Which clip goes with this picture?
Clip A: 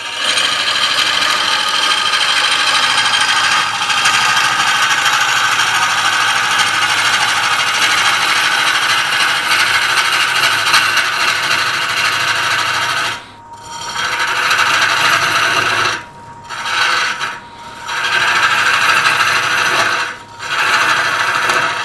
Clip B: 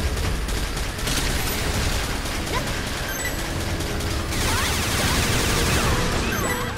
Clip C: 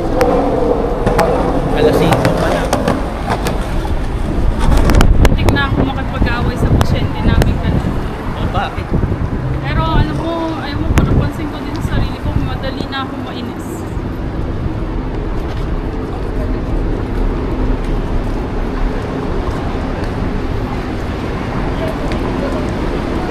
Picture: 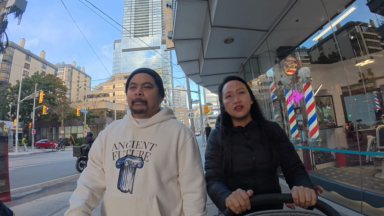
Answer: C